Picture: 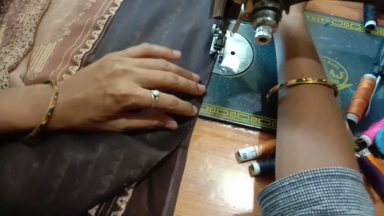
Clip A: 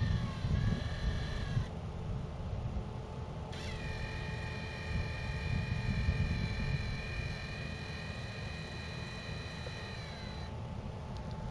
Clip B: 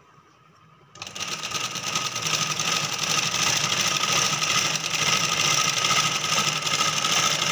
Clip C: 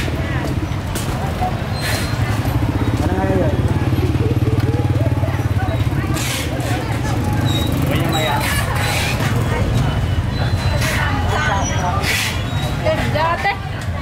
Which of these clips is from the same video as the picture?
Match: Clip B